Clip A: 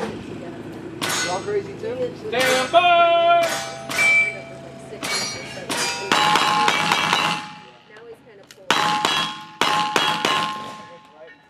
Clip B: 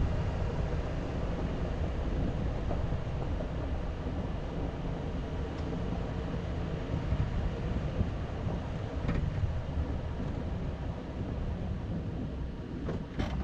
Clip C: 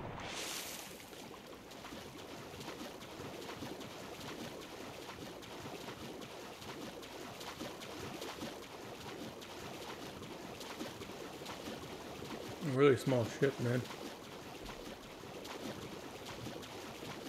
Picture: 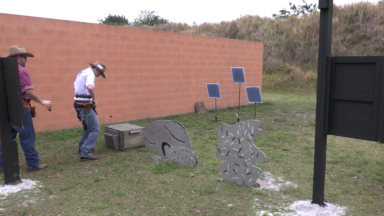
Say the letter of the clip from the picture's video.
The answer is A